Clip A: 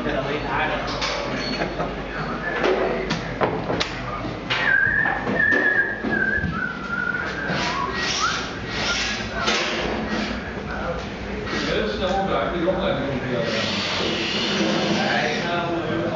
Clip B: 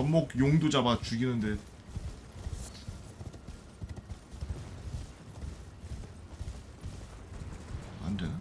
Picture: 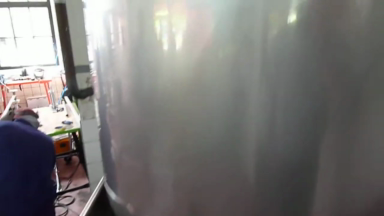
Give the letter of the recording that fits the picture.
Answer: A